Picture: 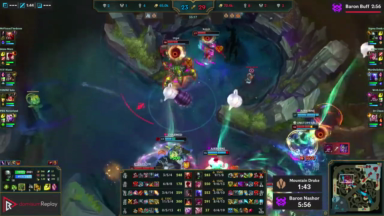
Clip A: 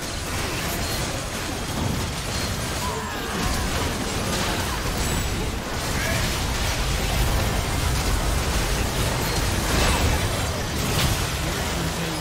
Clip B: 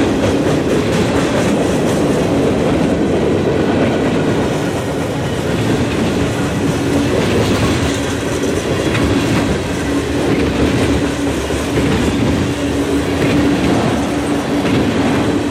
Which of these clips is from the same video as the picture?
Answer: A